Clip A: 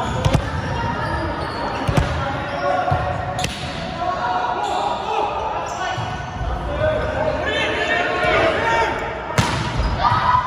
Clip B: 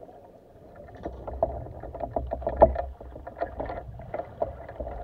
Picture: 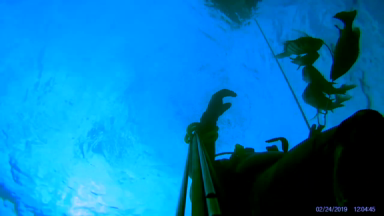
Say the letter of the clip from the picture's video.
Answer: B